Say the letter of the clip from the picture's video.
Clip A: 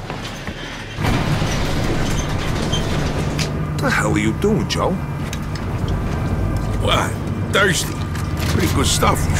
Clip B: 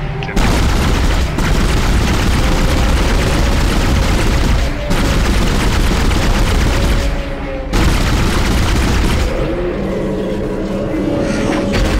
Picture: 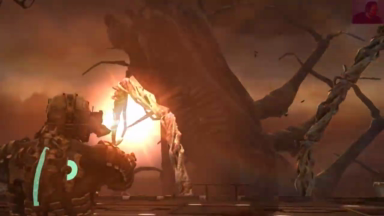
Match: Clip B